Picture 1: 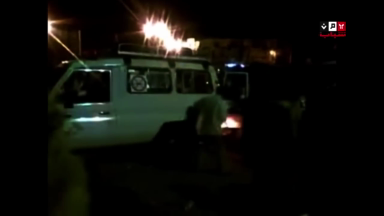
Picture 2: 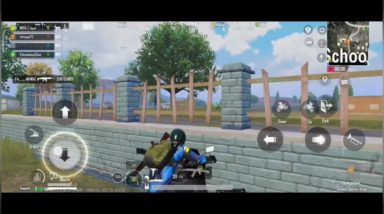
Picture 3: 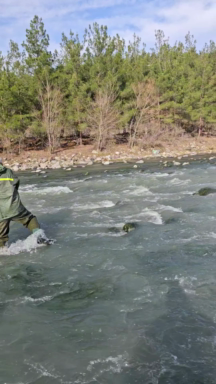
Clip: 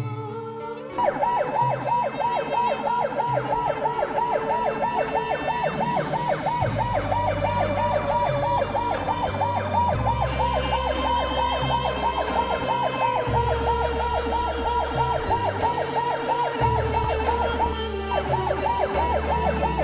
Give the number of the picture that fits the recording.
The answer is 1